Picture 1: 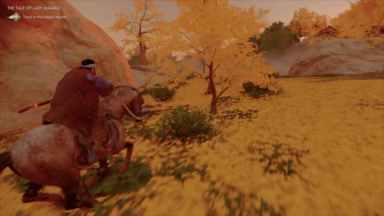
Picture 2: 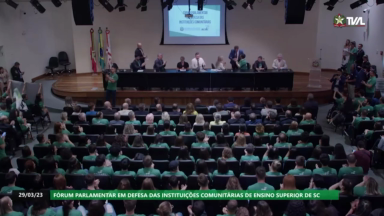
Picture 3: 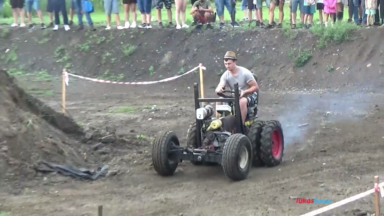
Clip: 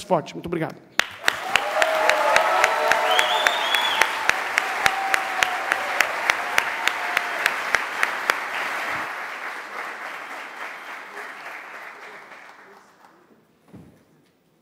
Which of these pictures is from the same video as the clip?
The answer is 2